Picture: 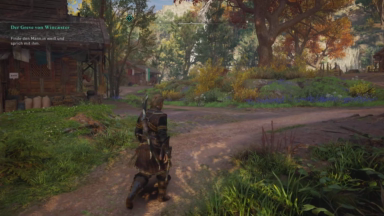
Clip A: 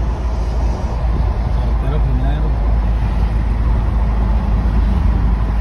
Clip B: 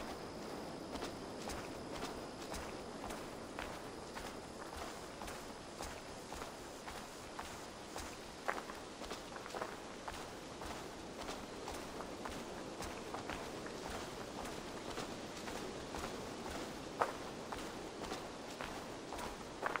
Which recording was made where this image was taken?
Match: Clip B